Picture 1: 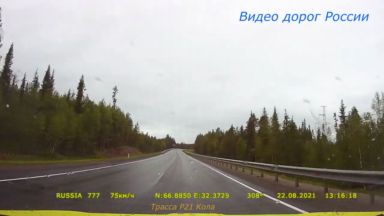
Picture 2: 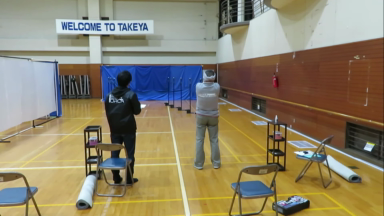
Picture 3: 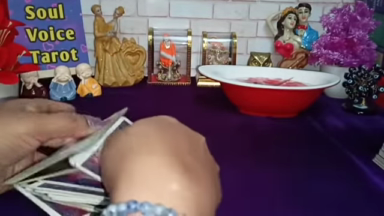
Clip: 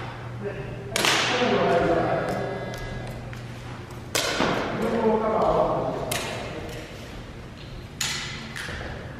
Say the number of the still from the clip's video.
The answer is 2